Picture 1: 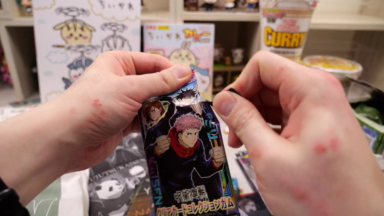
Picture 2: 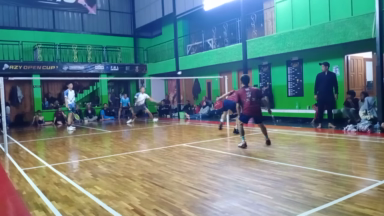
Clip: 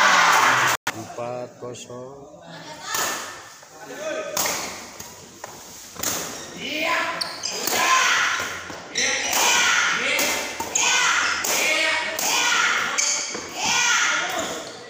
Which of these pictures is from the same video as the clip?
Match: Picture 2